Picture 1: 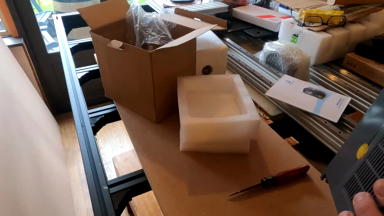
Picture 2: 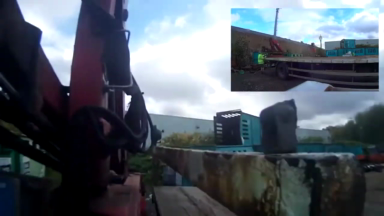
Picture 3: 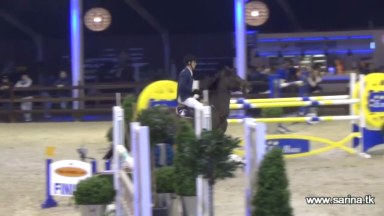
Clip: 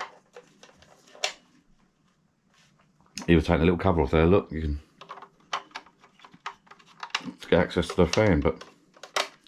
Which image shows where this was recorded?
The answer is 1